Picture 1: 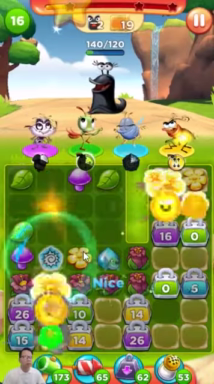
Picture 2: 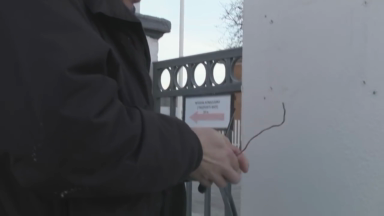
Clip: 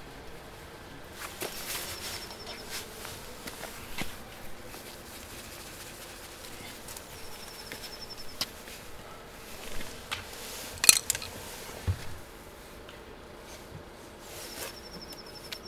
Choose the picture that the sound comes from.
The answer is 2